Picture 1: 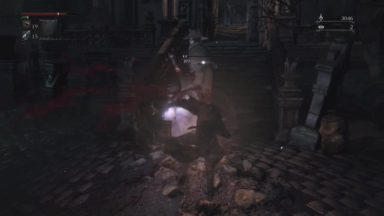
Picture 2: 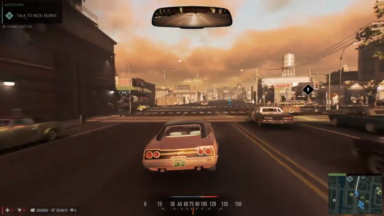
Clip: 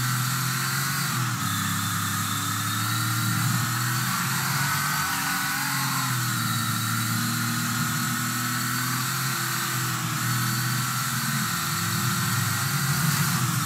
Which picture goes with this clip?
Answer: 2